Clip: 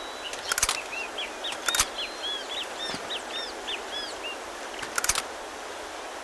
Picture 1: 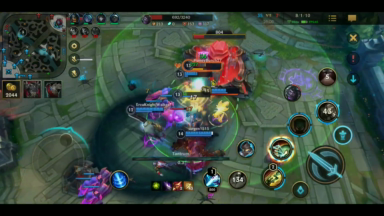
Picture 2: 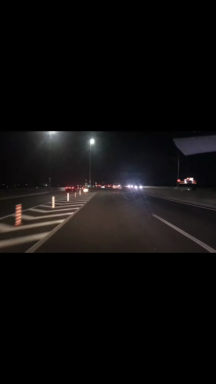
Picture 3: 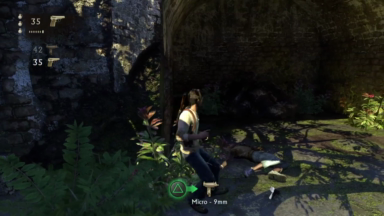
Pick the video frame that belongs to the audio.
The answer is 3